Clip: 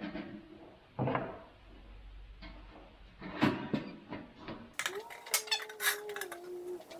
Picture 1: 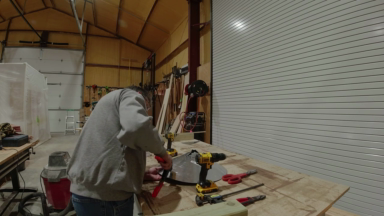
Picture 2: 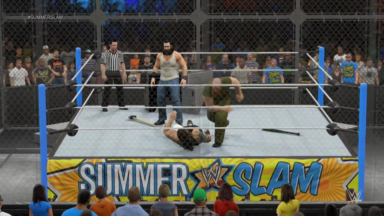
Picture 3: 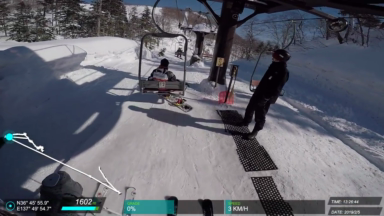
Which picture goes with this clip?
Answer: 1